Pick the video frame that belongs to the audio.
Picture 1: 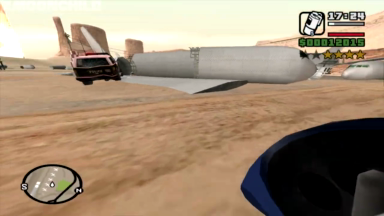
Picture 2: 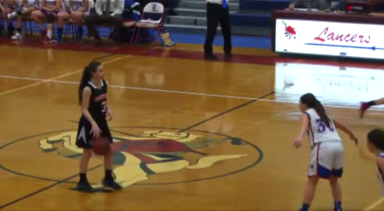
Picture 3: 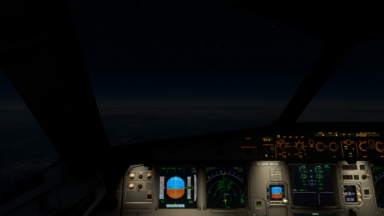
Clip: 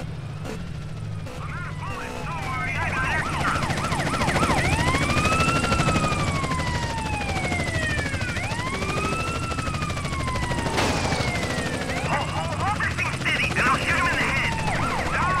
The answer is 1